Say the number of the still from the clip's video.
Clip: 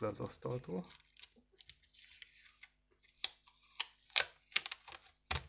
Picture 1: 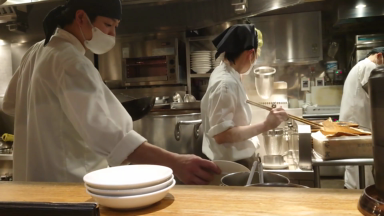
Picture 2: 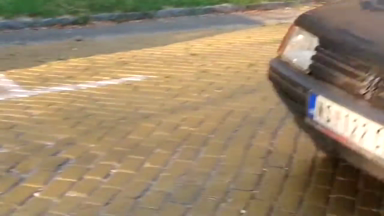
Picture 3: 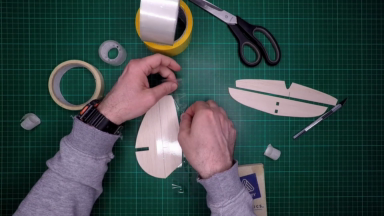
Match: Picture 3